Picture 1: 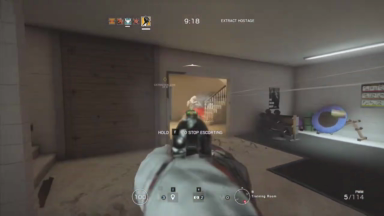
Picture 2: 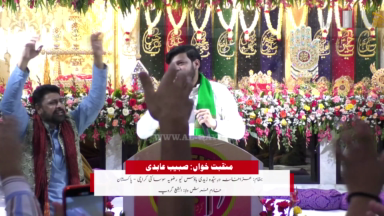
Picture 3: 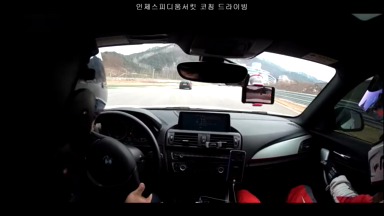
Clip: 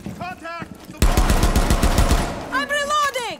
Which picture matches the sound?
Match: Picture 1